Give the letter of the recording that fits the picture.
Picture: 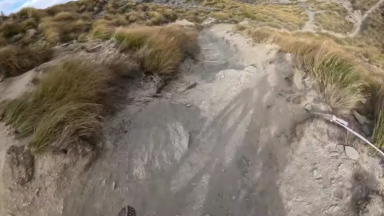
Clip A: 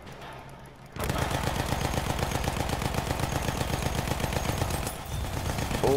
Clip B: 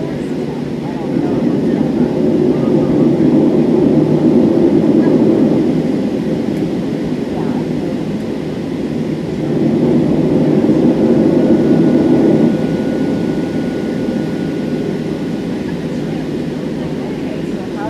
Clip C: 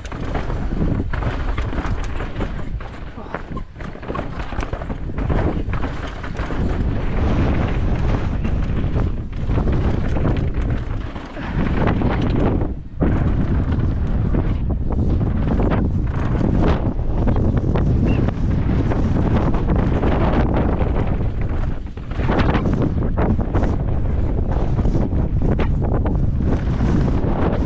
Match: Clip C